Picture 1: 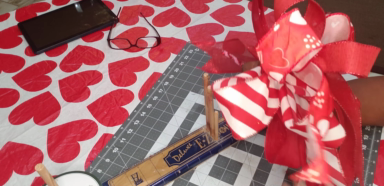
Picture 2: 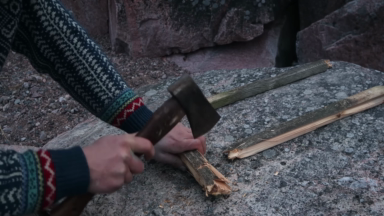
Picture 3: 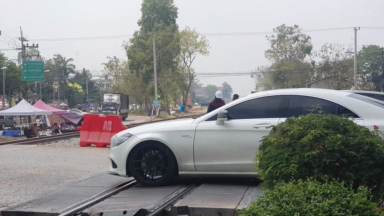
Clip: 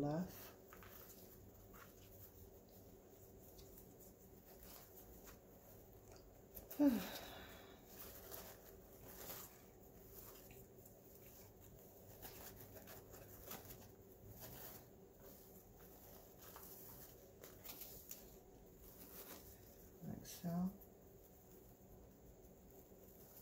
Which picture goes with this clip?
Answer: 1